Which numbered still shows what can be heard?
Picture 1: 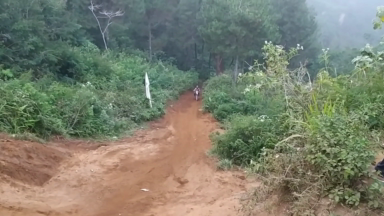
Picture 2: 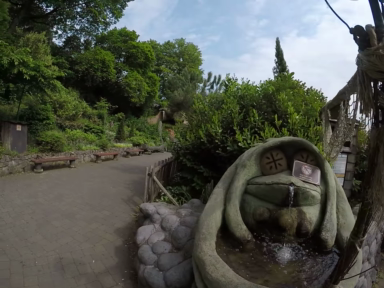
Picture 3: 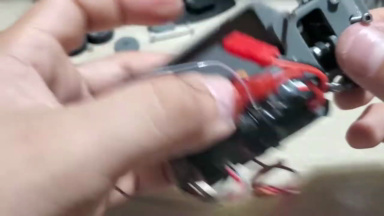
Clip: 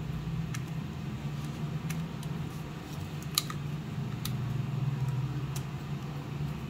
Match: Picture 3